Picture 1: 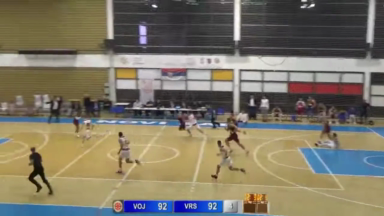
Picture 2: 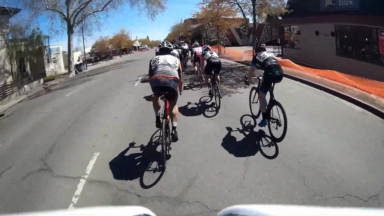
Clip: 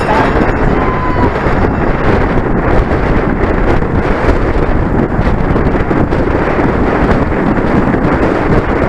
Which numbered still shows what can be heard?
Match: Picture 2